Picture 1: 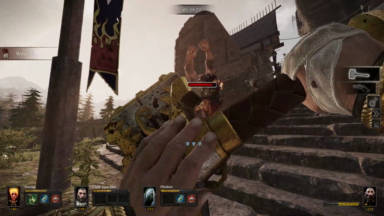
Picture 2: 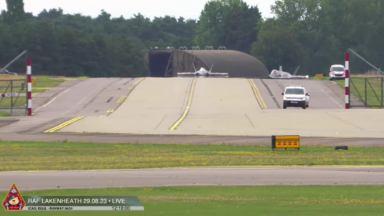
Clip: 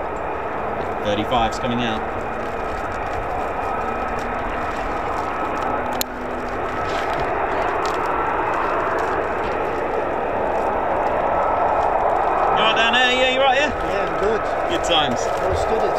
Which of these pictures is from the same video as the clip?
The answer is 2